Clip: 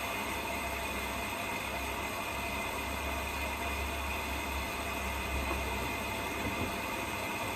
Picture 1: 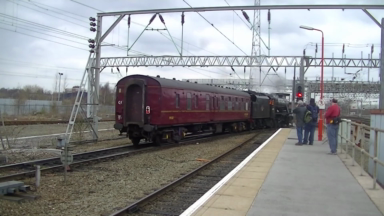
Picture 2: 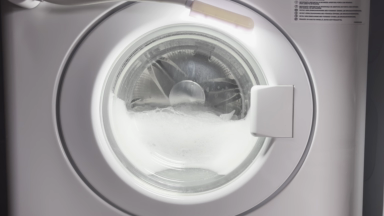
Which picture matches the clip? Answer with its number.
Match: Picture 2